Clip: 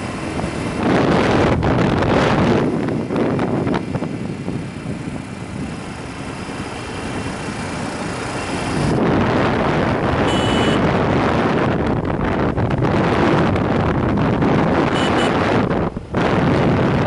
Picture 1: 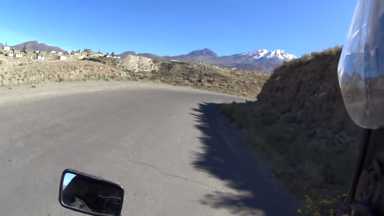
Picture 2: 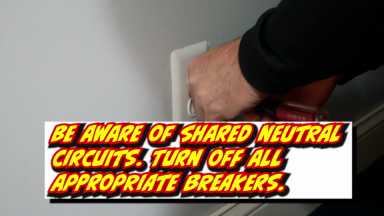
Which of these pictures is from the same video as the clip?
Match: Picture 1